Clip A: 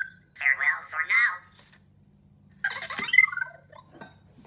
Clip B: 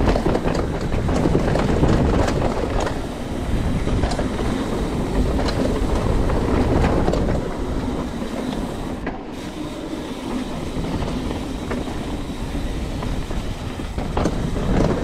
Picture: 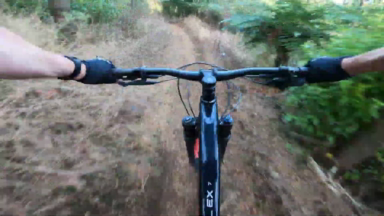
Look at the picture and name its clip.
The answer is B